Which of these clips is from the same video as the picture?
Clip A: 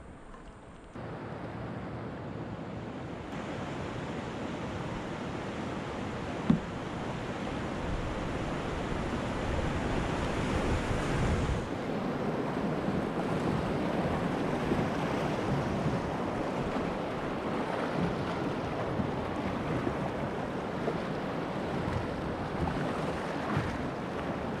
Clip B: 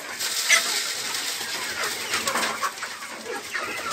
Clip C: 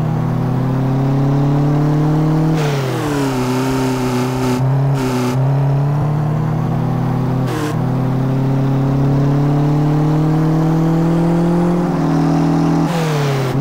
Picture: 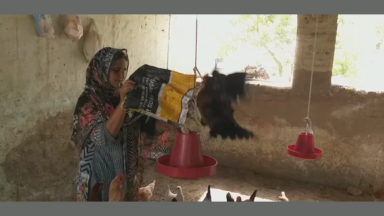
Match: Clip B